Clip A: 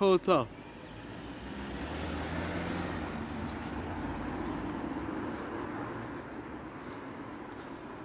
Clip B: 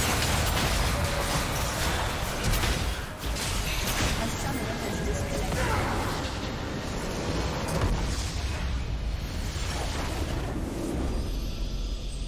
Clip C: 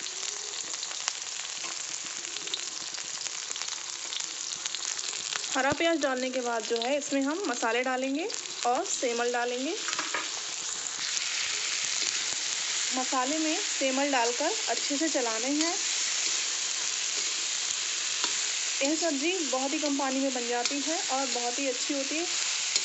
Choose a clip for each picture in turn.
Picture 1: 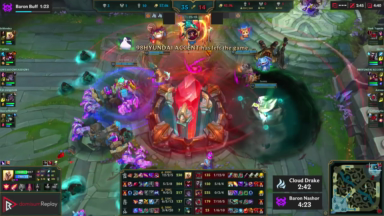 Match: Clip B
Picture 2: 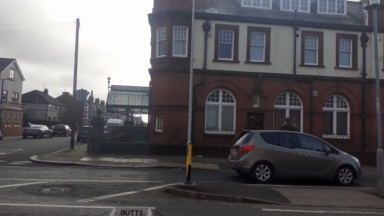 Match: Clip A